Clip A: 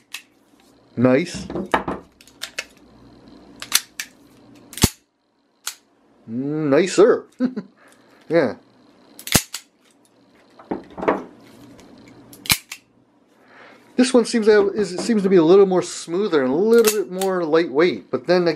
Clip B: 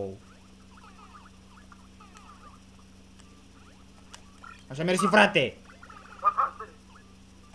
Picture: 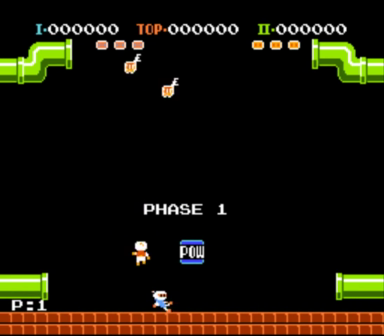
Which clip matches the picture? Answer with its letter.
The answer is B